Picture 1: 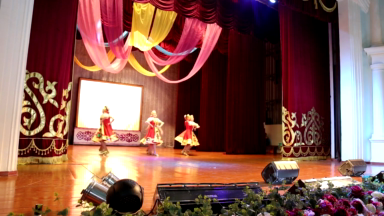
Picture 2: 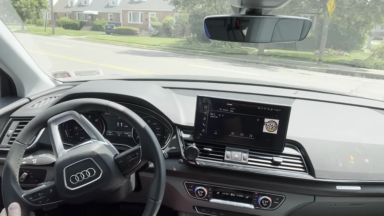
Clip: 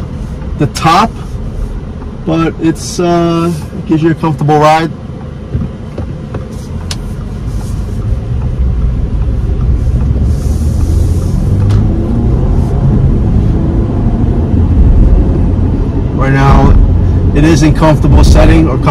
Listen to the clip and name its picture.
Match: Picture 2